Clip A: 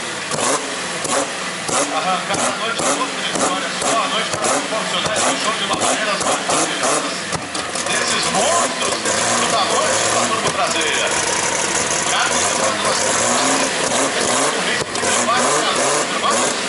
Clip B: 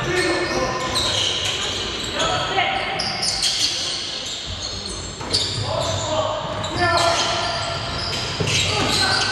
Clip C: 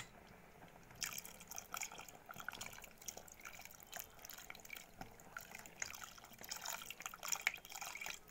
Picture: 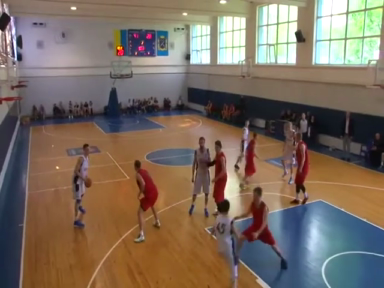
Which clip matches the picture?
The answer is B